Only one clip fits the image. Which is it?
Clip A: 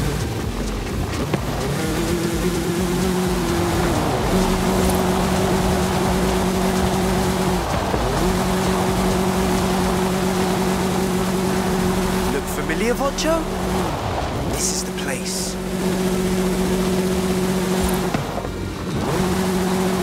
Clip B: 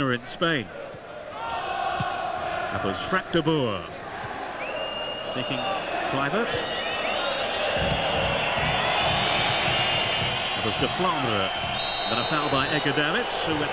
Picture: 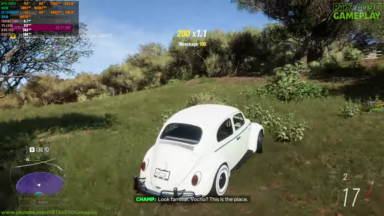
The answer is A